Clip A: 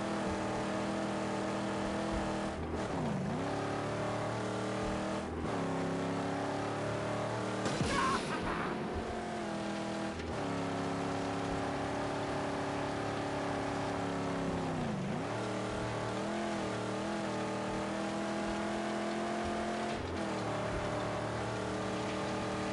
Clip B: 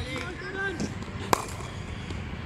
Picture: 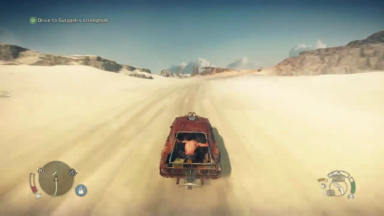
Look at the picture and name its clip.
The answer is A